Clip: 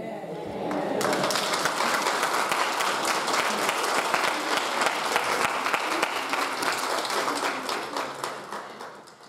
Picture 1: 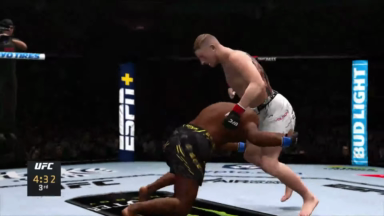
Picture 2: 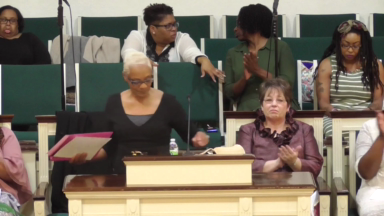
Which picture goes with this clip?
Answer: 2